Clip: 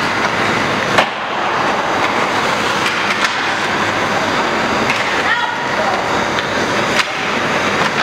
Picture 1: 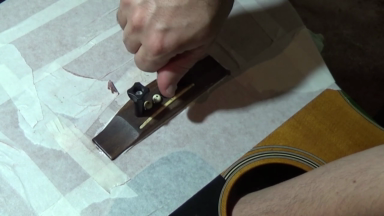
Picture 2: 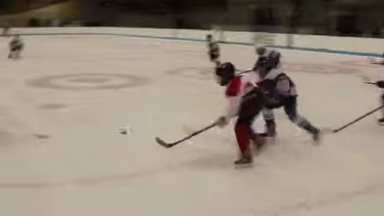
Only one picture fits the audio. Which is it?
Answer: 2